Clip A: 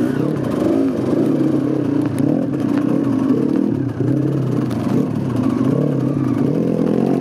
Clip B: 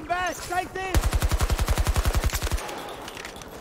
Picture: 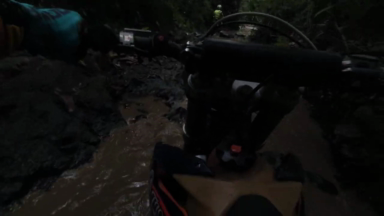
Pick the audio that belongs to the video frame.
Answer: A